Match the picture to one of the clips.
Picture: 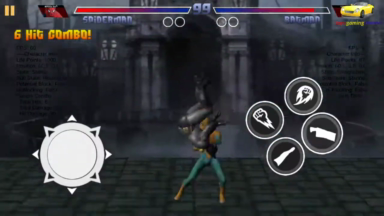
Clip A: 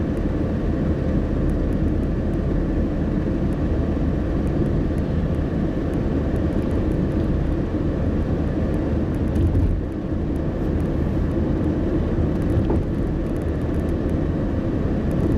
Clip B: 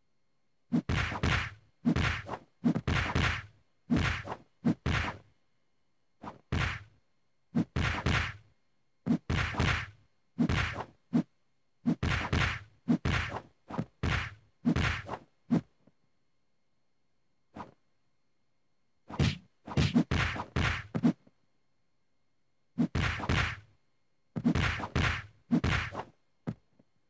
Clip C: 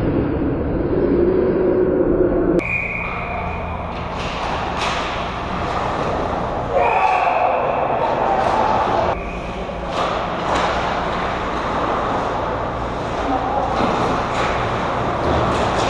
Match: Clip B